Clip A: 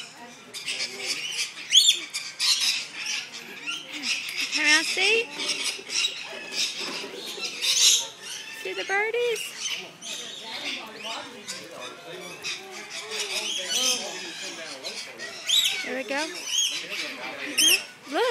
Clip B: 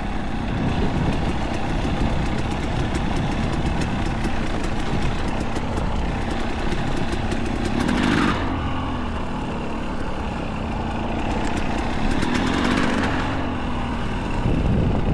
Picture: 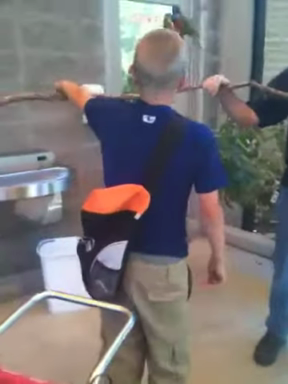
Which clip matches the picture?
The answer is A